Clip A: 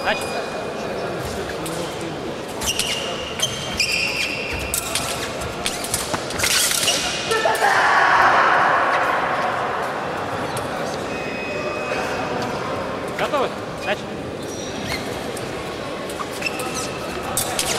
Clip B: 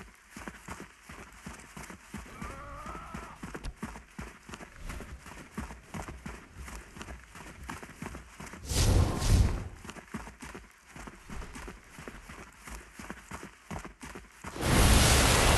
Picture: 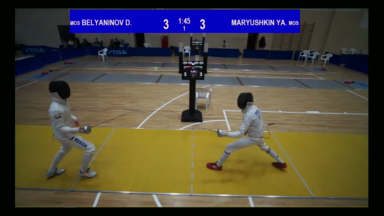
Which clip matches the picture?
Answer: A